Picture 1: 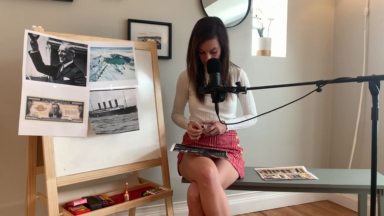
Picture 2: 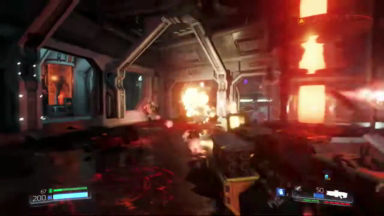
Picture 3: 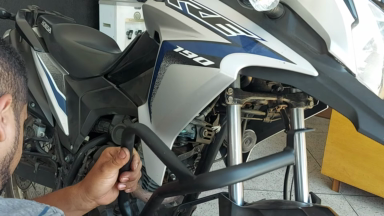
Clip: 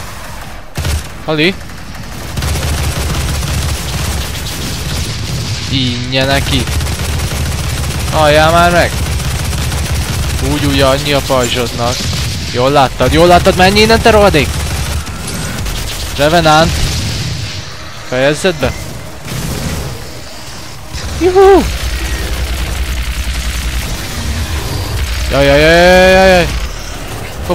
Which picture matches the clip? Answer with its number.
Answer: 2